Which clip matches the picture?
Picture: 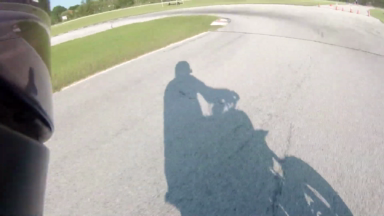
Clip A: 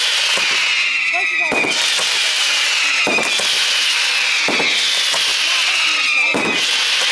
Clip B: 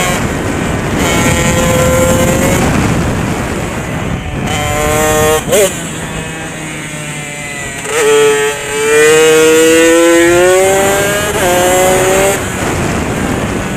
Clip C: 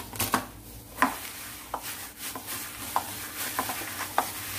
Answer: B